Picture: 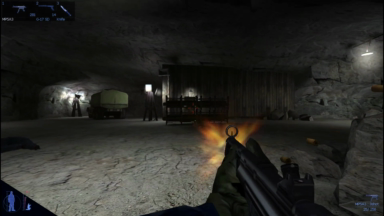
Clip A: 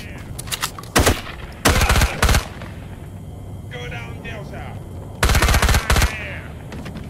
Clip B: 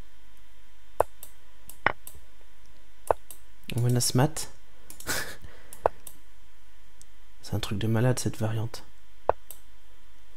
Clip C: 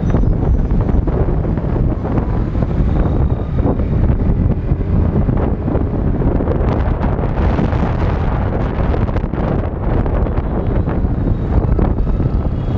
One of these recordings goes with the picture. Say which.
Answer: A